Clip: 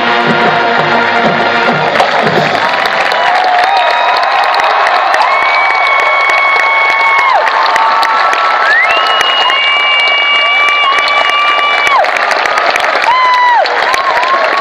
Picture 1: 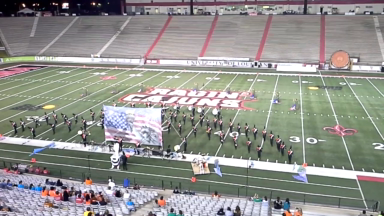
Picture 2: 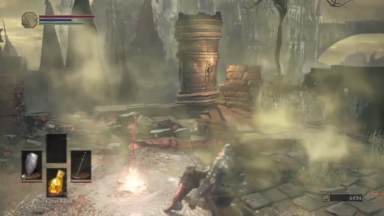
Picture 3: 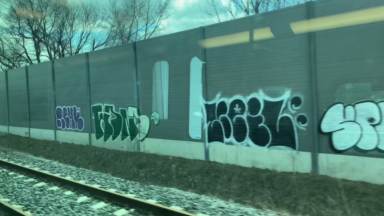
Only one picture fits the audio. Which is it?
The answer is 1